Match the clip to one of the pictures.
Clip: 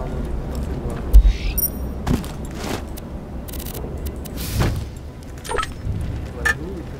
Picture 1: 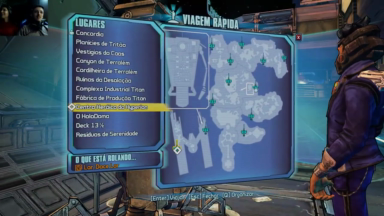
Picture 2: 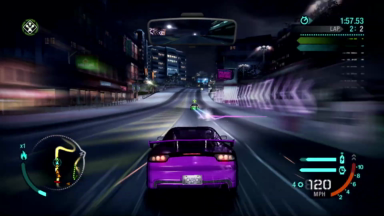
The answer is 1